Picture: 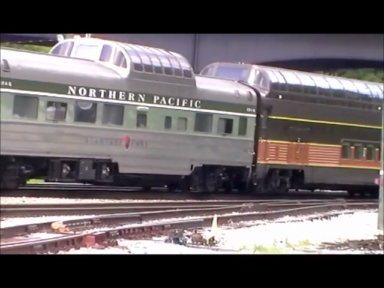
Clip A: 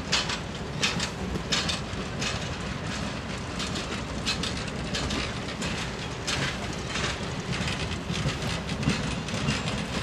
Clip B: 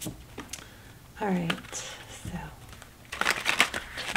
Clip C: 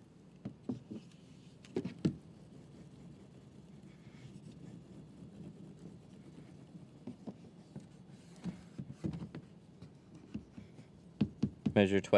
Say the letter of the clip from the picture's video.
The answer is A